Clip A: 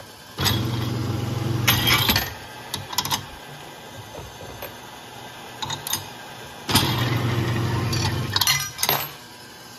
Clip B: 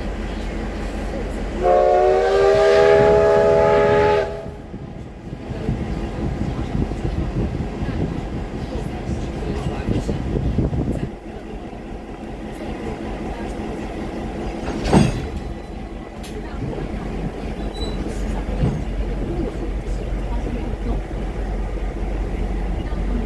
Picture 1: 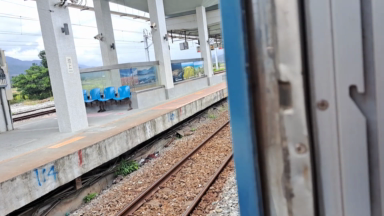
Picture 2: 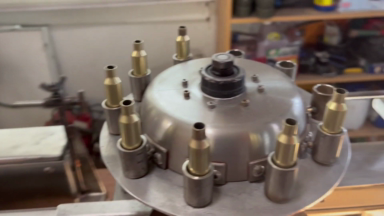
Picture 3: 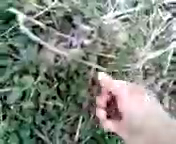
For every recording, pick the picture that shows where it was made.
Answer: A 2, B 1